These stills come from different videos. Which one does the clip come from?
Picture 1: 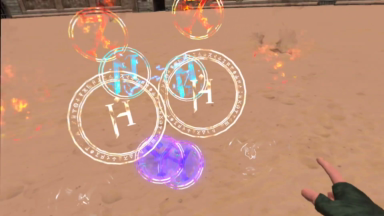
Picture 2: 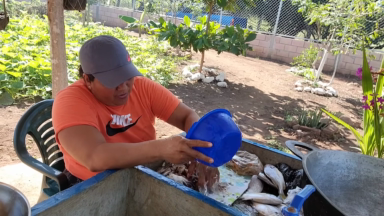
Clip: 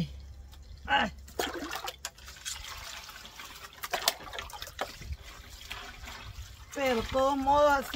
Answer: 2